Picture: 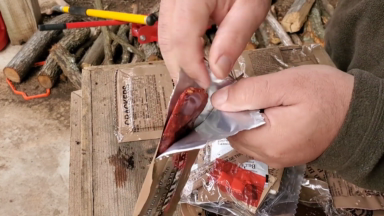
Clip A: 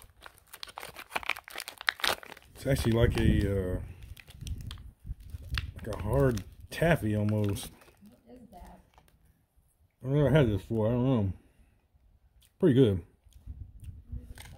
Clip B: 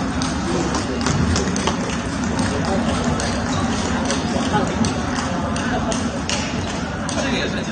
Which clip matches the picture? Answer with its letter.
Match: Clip A